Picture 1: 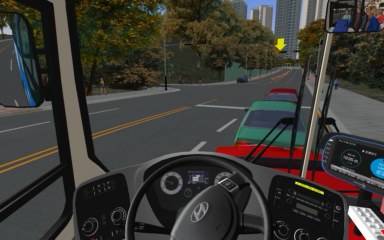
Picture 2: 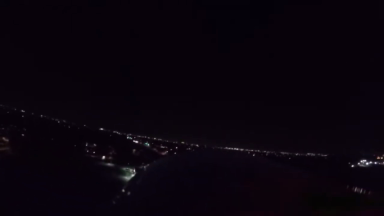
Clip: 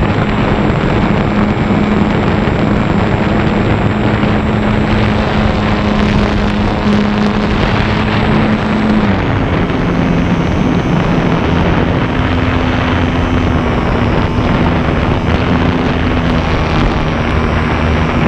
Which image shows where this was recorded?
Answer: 2